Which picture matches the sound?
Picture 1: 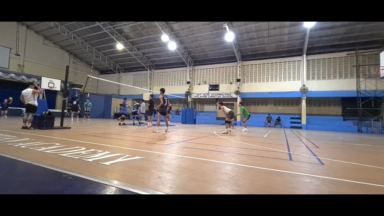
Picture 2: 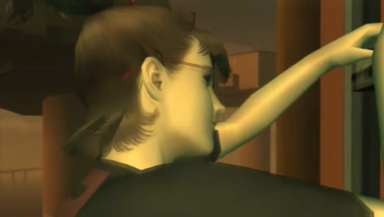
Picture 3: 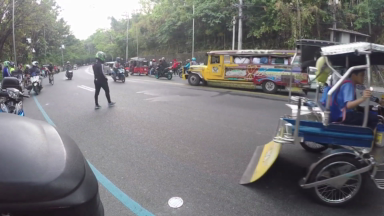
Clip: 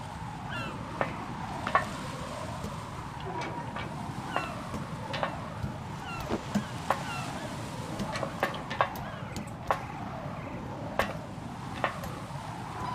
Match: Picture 2